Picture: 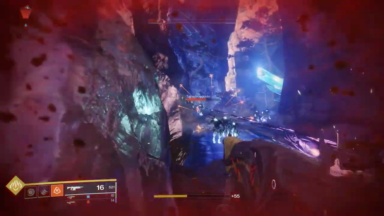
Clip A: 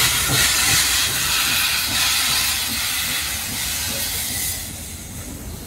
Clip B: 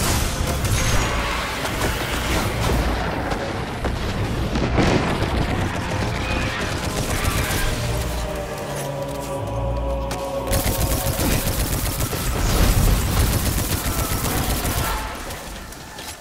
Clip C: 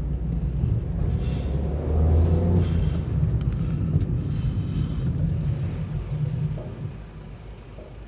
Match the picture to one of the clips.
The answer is B